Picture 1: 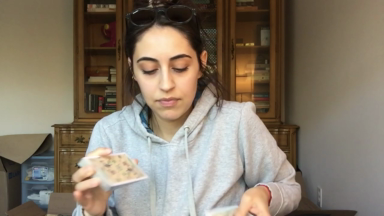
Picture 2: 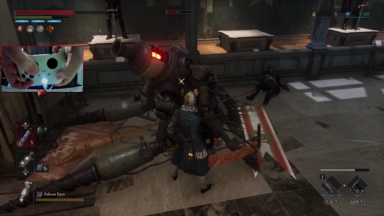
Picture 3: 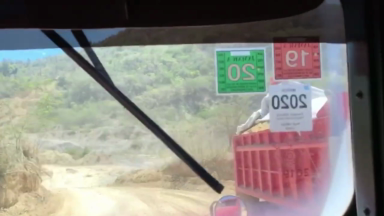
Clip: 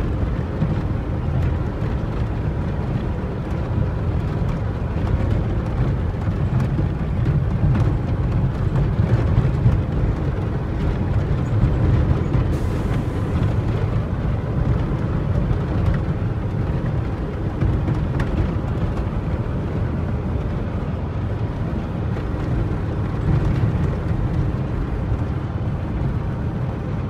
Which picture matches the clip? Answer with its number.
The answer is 3